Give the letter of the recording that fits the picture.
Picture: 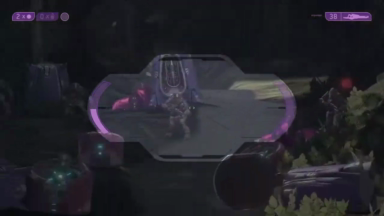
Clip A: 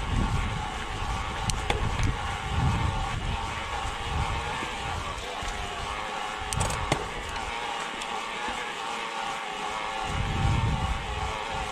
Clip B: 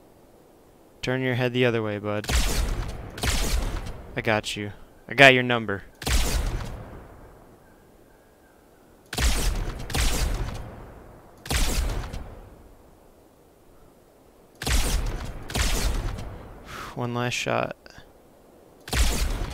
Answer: B